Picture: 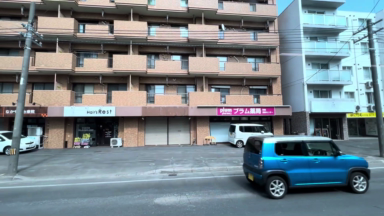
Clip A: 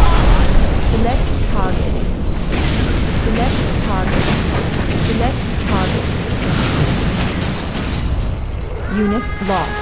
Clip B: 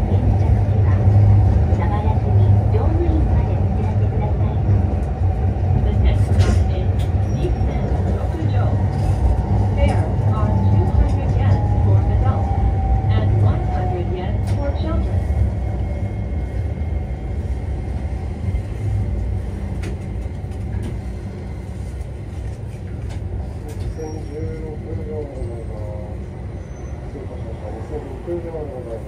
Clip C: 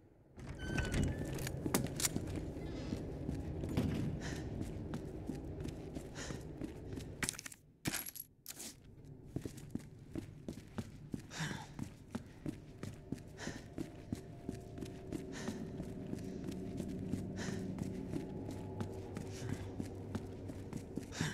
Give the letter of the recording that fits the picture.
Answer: B